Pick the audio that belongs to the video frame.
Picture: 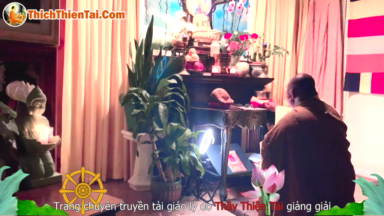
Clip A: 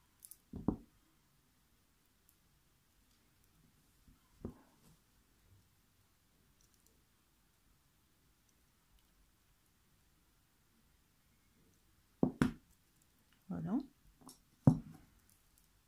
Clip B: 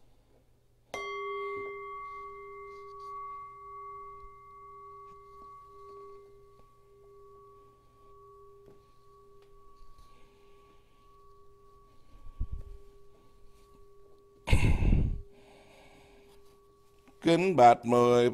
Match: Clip B